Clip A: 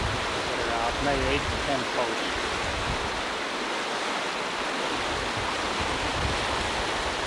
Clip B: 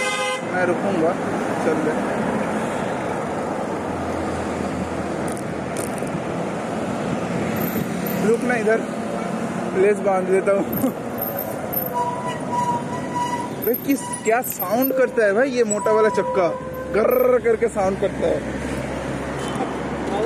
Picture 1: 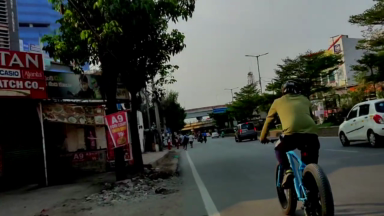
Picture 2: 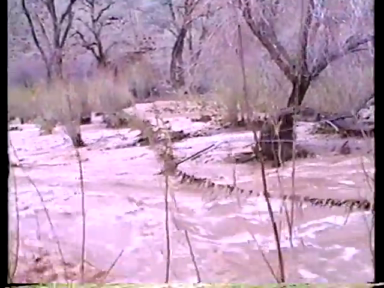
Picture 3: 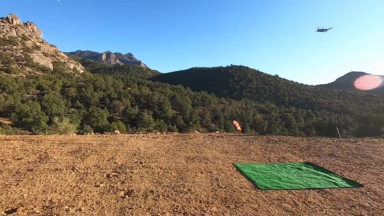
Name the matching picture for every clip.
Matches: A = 2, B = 1